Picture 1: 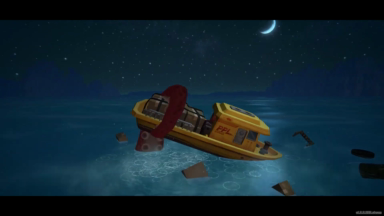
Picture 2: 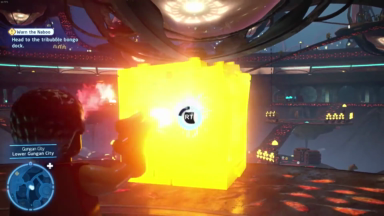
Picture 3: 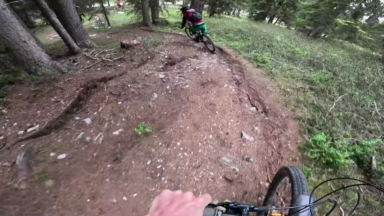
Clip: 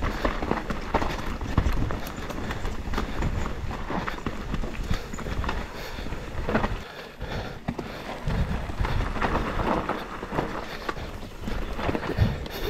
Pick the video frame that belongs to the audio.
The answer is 3